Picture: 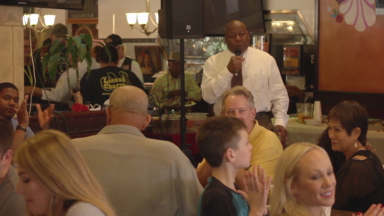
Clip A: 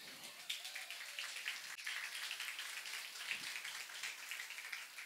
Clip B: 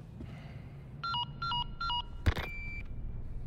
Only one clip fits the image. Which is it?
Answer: A